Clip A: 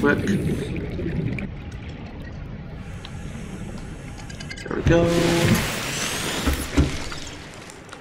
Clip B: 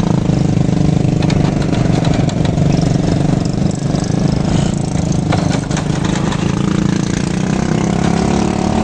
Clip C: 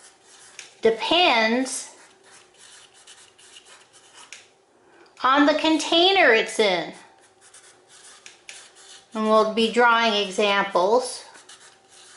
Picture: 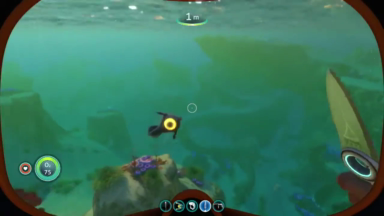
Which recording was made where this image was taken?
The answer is A